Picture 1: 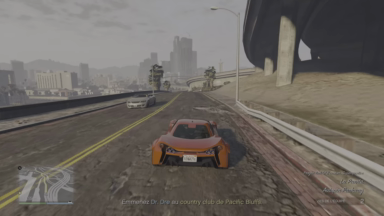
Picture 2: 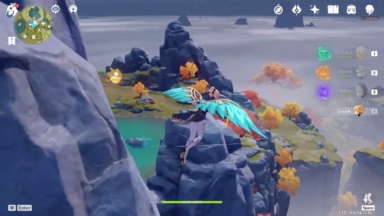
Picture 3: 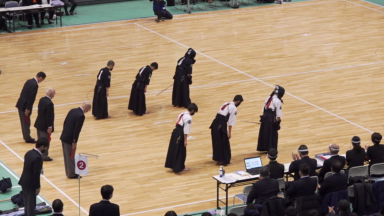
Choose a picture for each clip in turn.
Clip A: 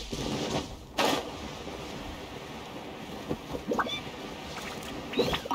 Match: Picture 2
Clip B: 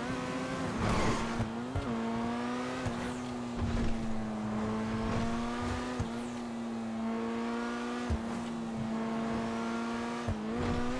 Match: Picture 1